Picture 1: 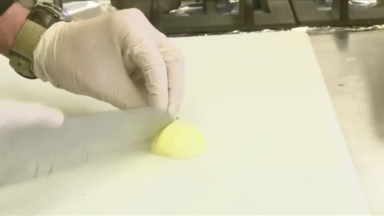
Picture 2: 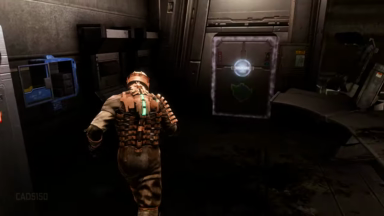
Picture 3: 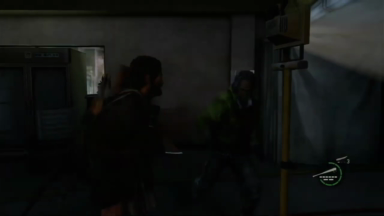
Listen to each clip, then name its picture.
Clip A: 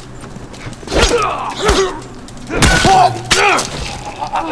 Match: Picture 3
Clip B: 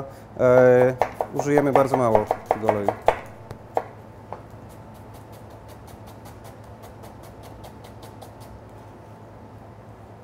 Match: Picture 1